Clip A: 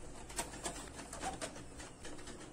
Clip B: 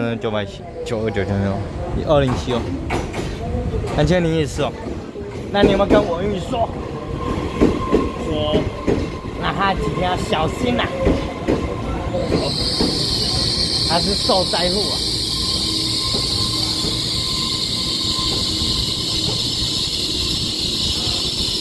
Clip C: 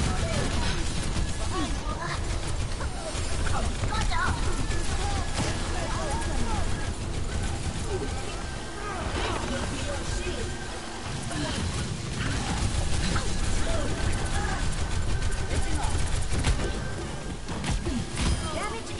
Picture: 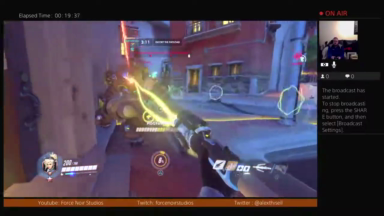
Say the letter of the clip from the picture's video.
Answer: C